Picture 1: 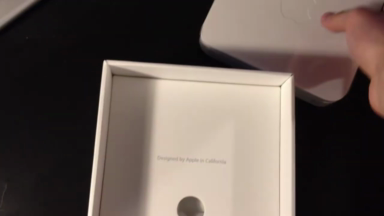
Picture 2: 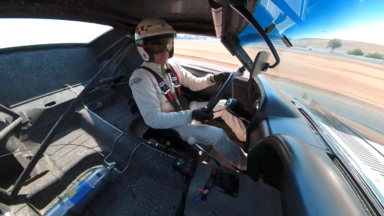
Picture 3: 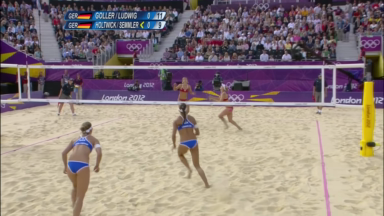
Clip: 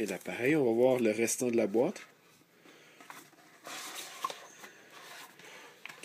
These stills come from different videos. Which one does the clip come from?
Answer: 1